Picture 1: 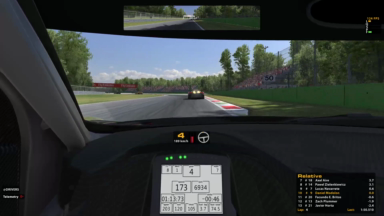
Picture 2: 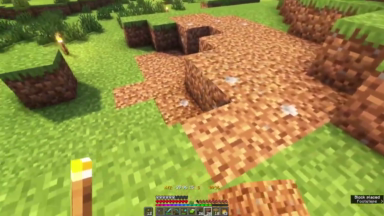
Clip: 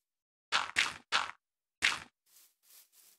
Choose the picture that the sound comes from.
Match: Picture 2